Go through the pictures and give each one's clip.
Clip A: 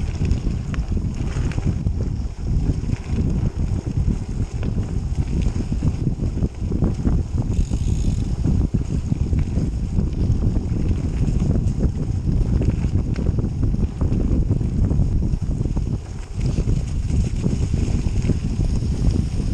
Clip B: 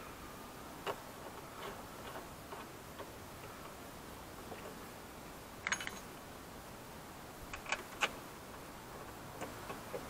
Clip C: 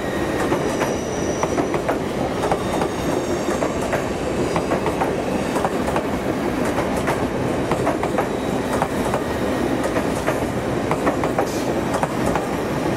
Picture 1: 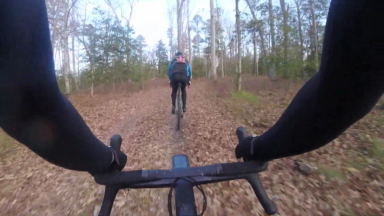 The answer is A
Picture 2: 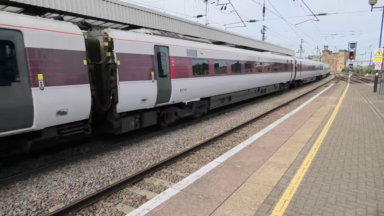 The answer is C